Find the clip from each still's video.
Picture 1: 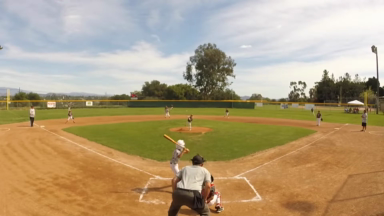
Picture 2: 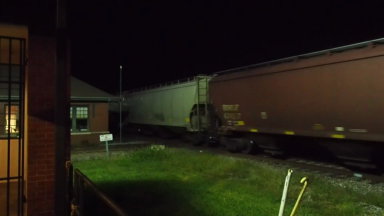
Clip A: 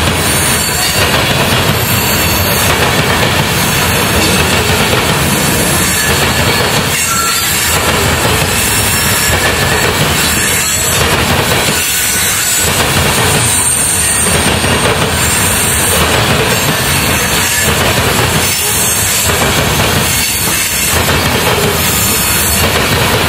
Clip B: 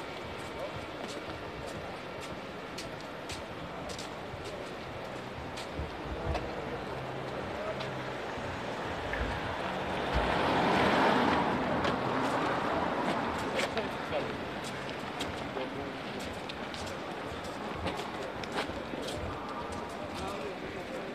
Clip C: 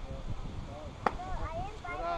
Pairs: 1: C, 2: A